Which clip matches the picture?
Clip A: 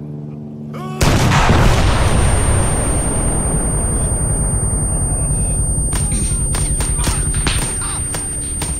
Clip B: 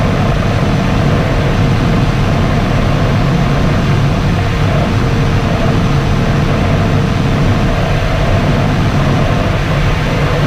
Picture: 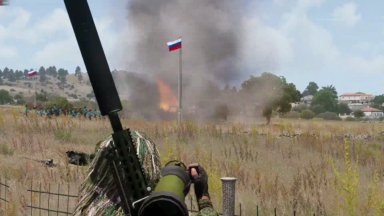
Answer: A